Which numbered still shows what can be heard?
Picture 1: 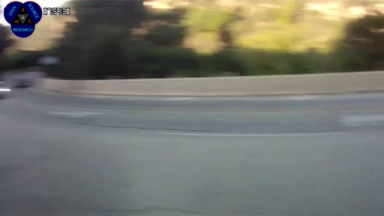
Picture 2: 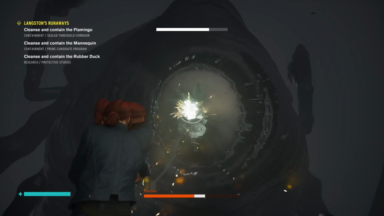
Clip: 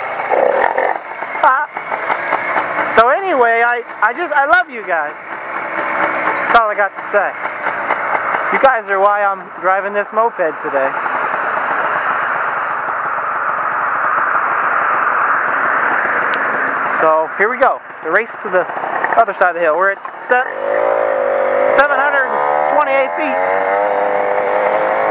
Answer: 1